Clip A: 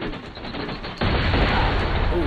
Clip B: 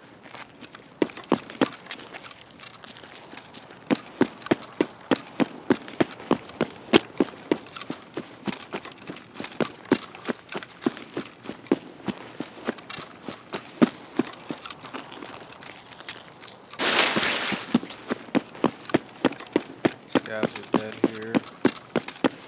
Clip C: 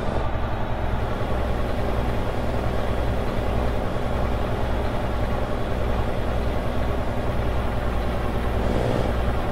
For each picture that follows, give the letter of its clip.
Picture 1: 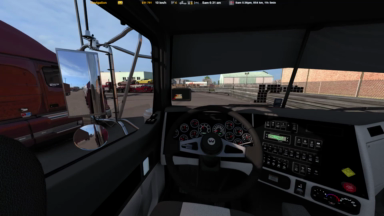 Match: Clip C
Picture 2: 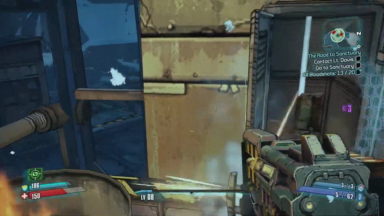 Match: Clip A